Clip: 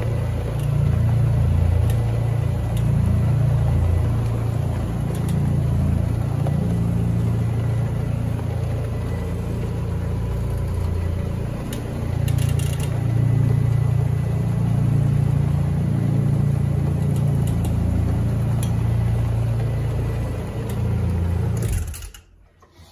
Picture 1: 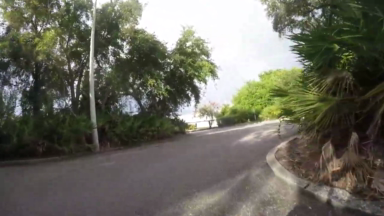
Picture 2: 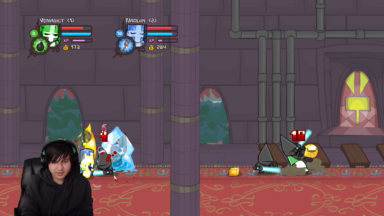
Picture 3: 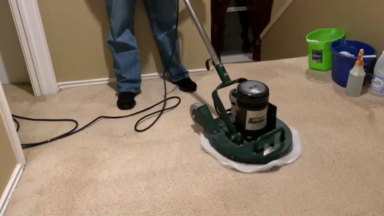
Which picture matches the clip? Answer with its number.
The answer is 3